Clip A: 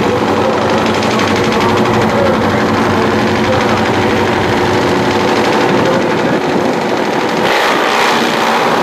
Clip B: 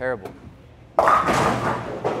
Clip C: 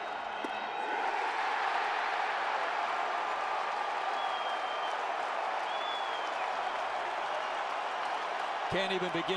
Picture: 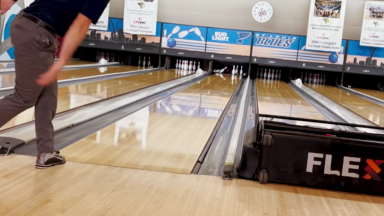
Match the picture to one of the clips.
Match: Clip B